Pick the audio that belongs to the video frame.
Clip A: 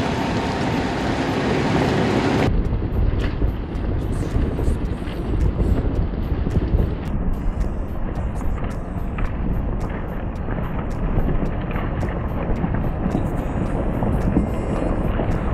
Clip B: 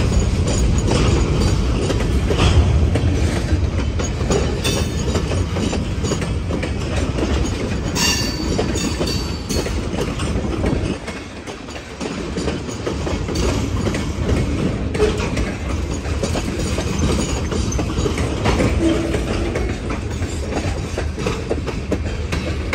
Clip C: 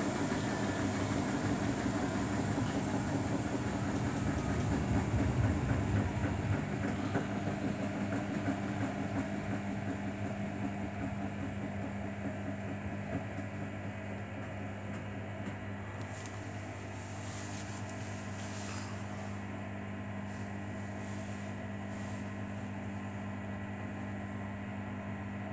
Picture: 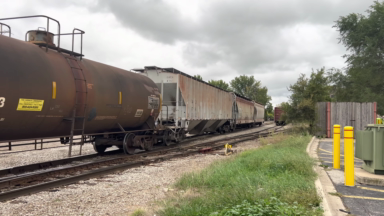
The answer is B